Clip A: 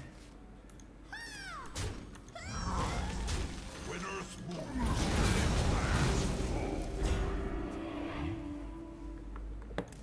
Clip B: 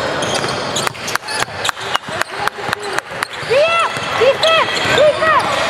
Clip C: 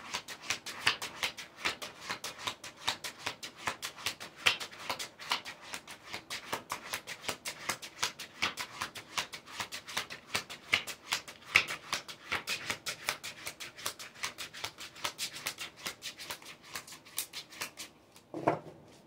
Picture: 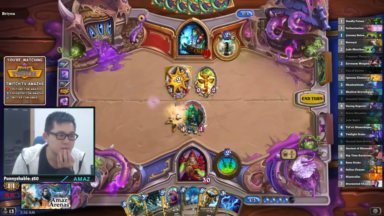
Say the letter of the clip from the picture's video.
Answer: A